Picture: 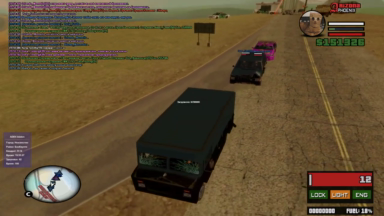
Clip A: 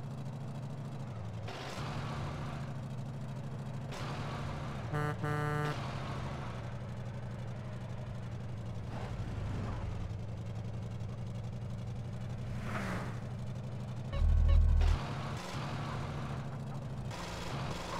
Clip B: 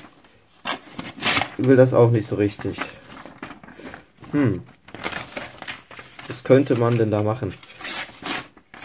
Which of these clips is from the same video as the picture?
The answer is A